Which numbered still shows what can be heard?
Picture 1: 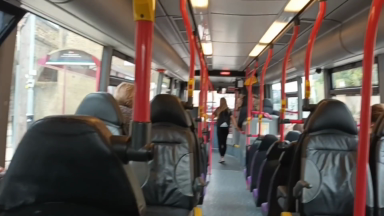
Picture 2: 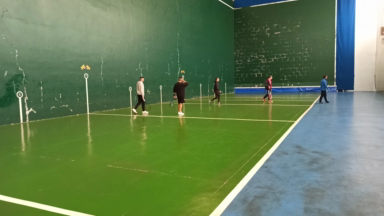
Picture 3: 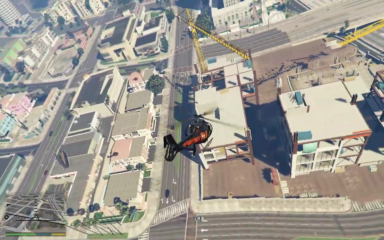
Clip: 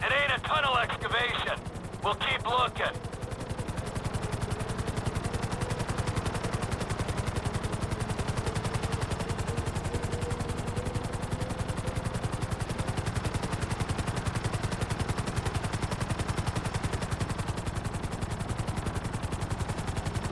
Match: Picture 3